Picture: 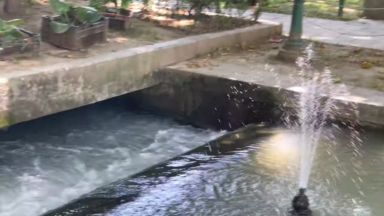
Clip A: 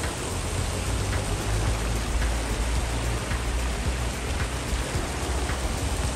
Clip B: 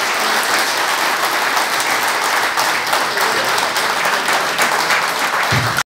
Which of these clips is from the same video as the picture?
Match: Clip A